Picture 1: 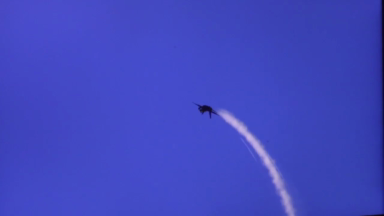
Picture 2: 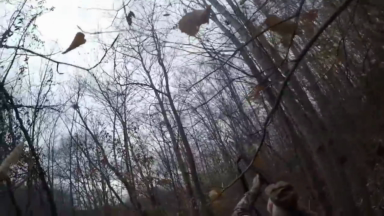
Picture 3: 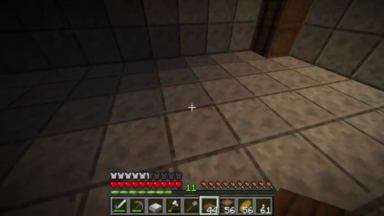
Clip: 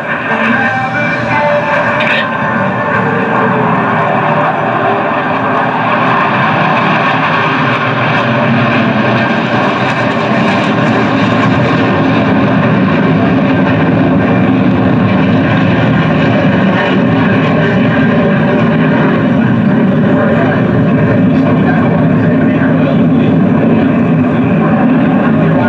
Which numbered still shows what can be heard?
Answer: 1